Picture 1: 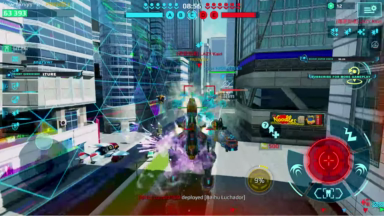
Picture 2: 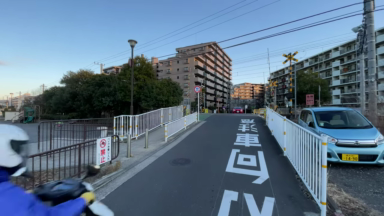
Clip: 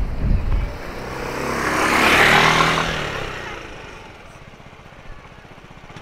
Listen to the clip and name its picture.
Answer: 2